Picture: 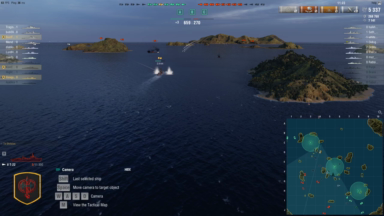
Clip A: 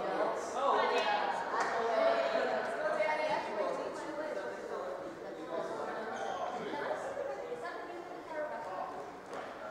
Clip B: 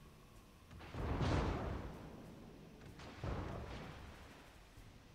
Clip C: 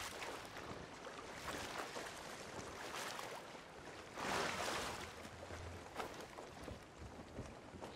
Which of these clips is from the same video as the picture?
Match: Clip B